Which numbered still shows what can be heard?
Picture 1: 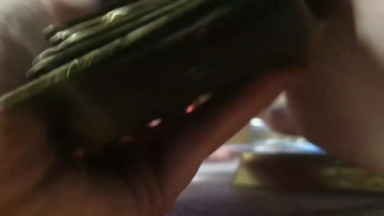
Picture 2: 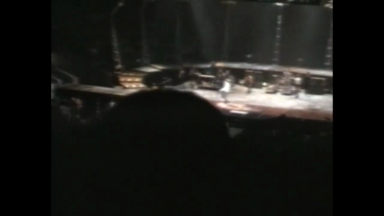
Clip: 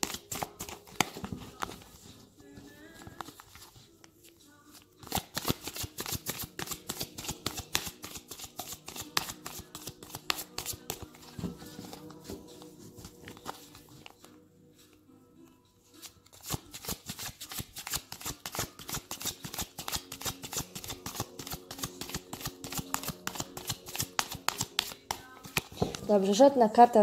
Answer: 1